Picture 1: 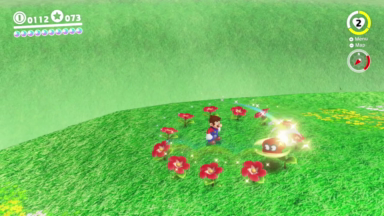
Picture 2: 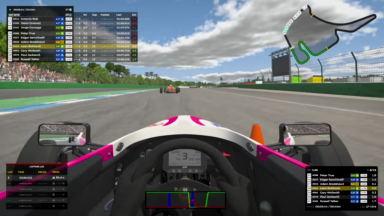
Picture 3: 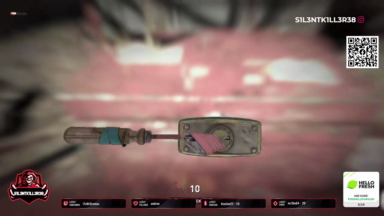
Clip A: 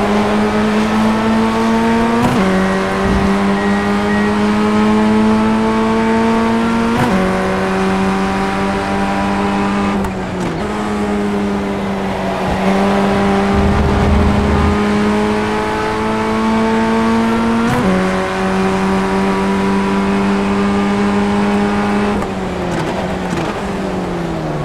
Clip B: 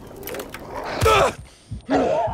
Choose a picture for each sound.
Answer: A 2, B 3